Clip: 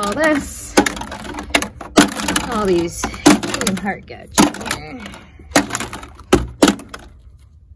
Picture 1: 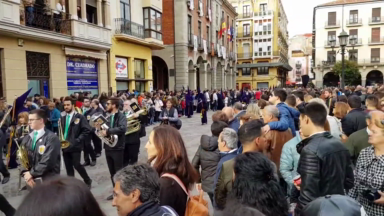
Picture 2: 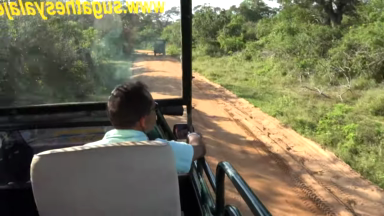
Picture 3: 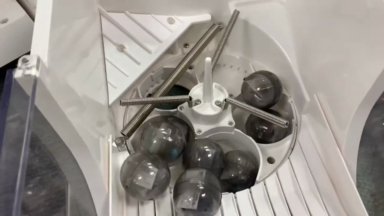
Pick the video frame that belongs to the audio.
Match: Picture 3